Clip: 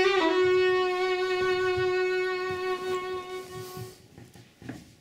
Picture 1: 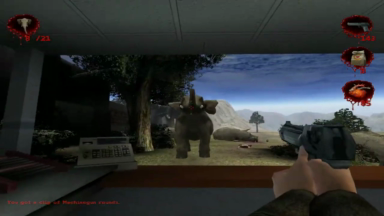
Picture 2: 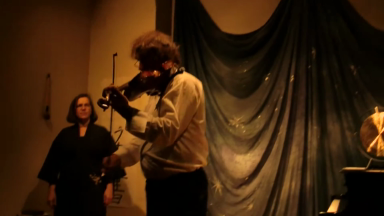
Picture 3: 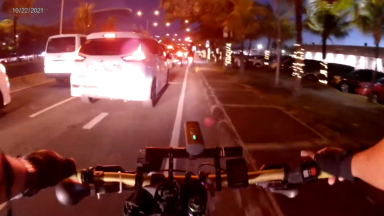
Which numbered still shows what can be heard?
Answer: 2